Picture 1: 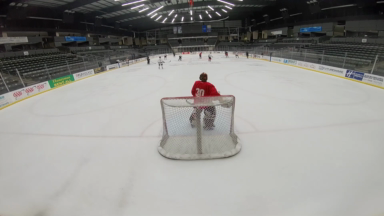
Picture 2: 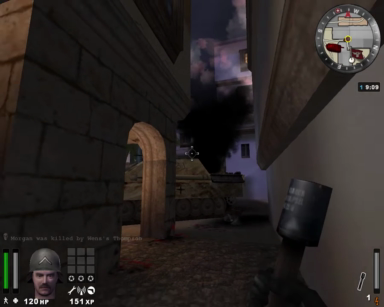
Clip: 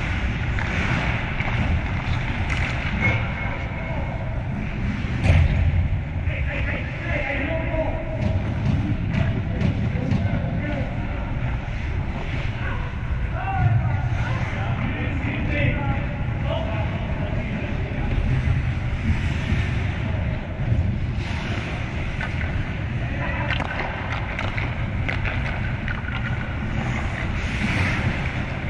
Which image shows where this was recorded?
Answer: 1